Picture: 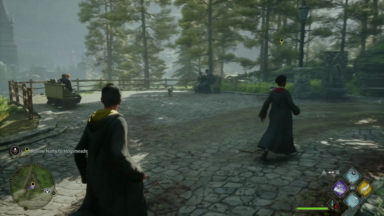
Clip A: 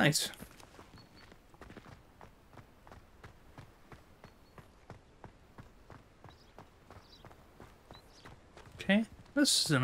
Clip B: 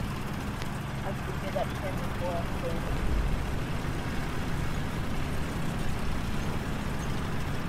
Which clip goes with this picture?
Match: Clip A